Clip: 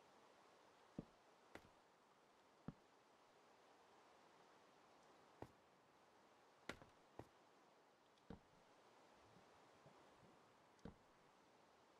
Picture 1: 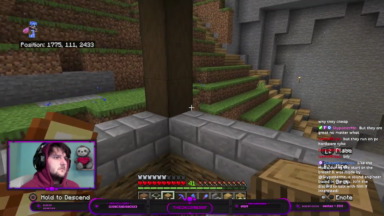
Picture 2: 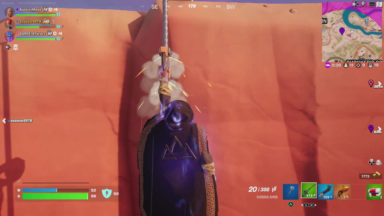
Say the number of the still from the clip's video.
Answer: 1